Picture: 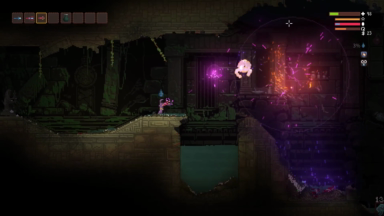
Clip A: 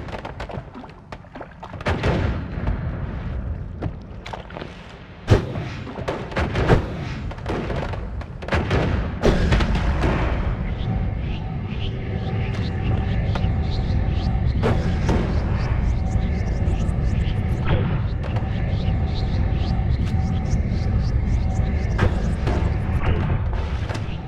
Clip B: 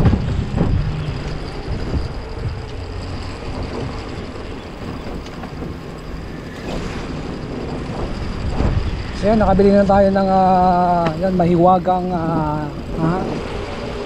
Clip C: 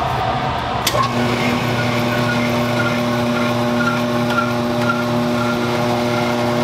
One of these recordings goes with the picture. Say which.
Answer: A